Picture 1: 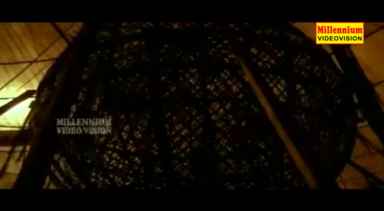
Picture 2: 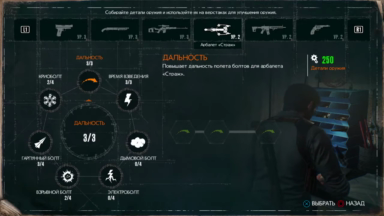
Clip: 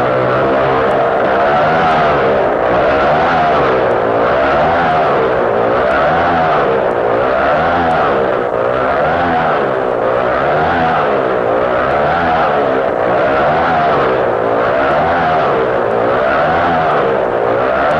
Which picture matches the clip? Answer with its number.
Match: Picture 1